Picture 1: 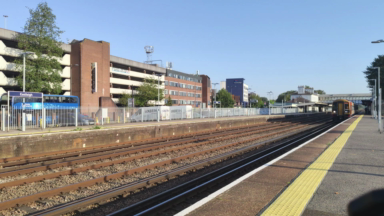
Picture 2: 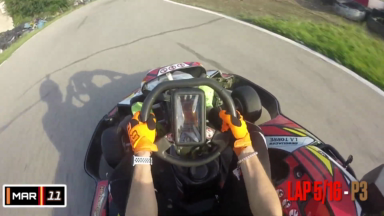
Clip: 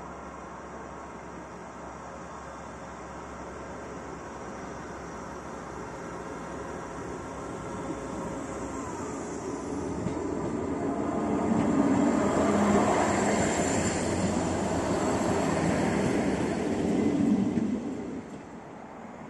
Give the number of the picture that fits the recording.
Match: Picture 1